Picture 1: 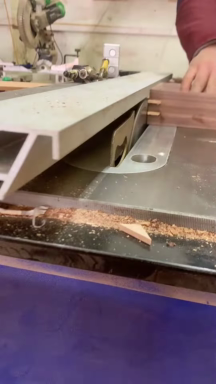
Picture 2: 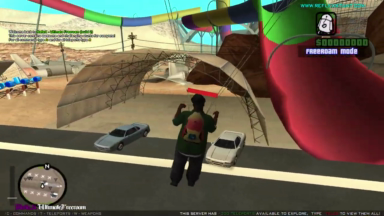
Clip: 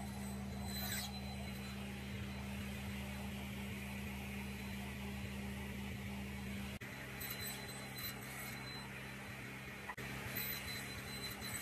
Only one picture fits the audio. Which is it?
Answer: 1